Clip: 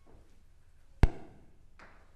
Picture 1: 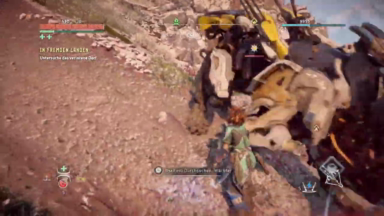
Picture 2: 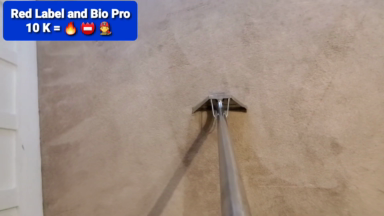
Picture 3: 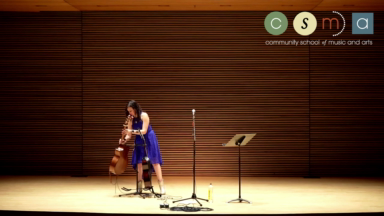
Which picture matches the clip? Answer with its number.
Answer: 3